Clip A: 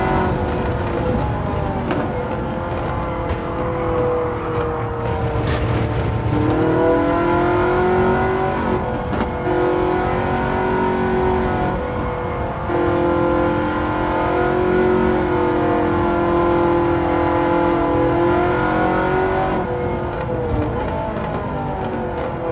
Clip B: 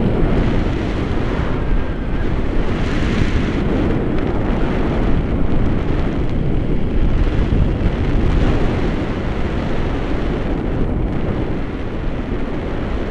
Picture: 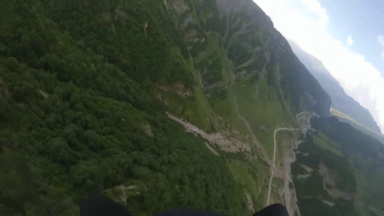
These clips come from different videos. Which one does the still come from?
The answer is B